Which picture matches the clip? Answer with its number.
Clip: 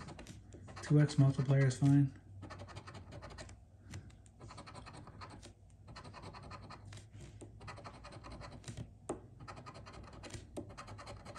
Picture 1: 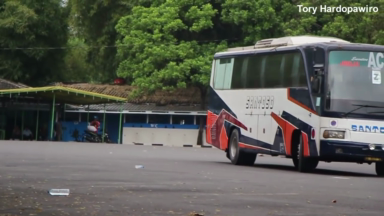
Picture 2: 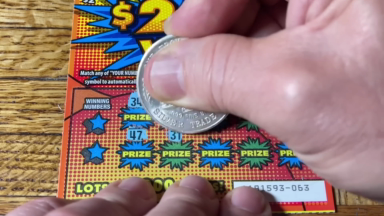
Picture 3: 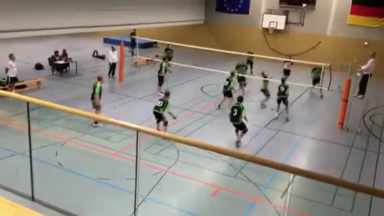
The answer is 2